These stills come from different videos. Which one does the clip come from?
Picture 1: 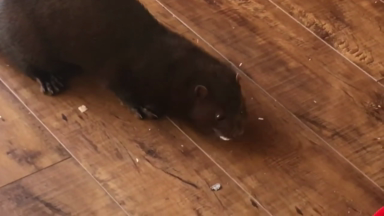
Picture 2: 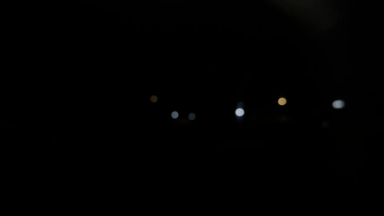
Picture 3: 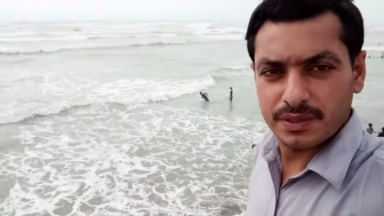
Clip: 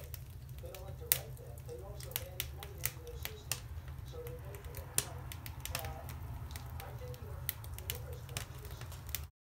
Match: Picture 1